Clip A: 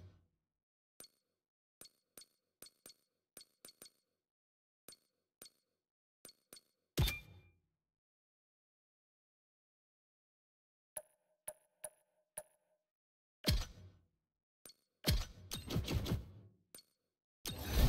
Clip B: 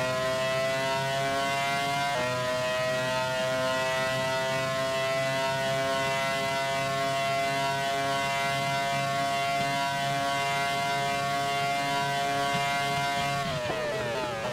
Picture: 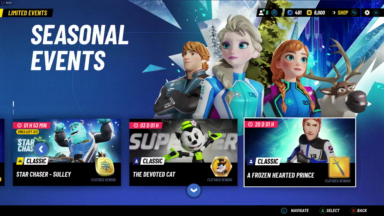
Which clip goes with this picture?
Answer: A